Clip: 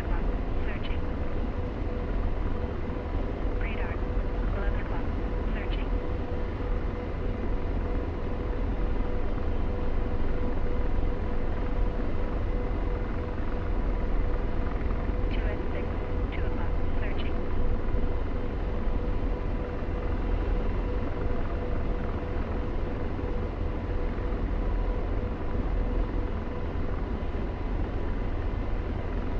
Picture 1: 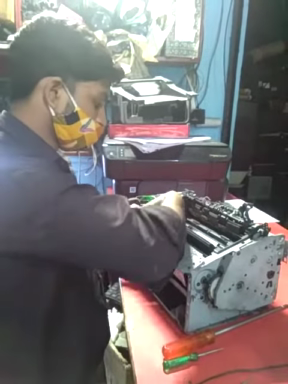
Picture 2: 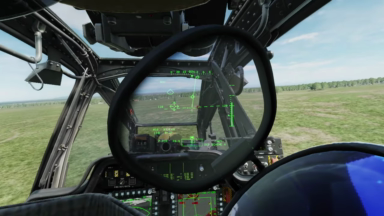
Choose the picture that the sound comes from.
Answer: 2